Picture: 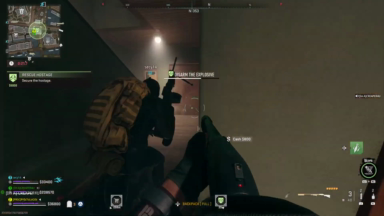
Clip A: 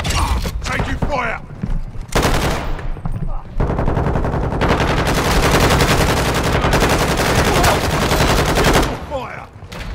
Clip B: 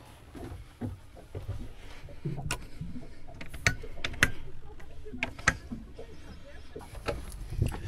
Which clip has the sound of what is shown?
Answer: A